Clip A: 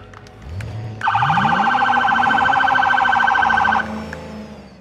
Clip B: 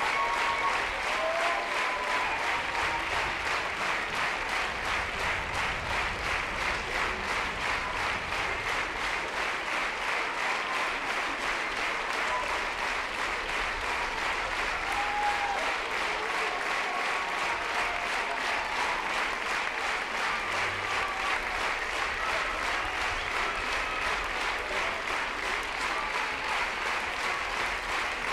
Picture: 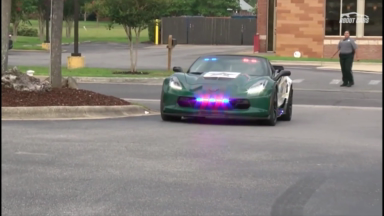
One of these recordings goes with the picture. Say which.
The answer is A